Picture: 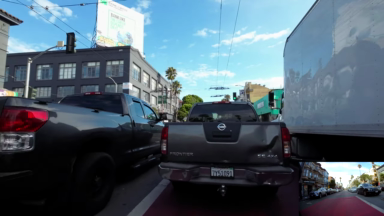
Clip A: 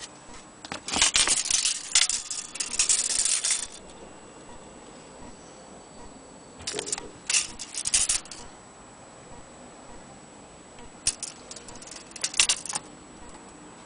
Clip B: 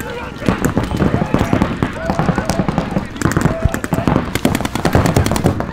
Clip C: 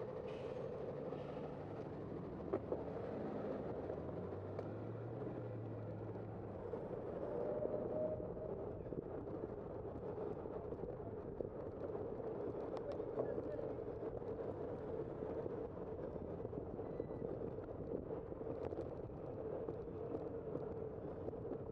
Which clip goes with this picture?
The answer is C